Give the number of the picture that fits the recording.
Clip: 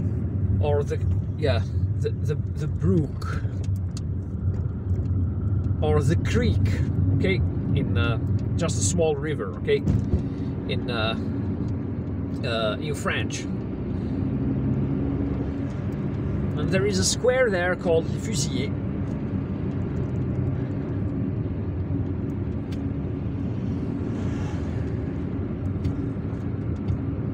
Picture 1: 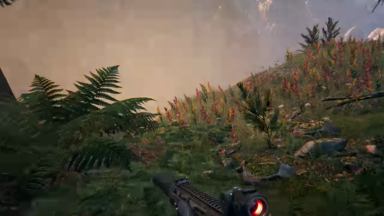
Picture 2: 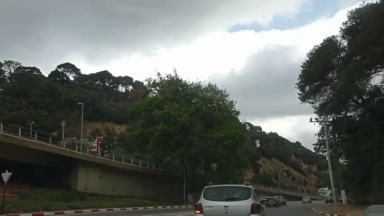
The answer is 2